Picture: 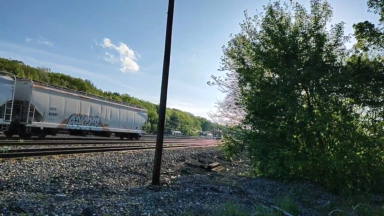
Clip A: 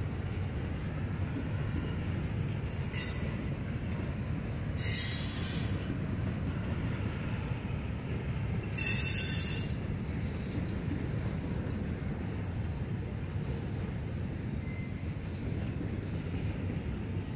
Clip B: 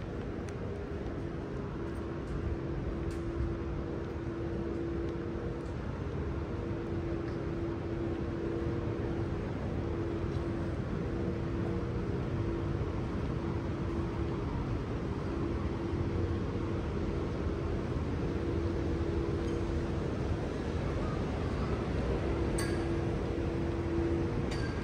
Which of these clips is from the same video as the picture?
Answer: A